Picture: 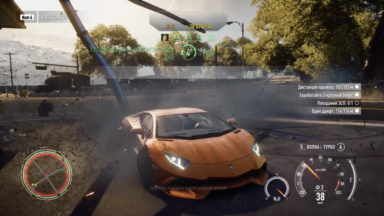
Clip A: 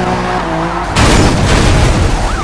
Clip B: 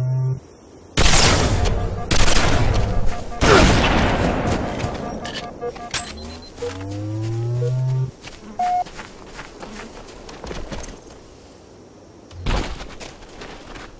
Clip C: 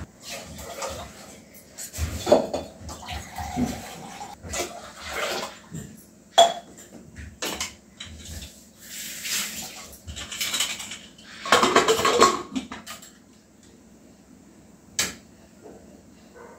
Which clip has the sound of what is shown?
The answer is A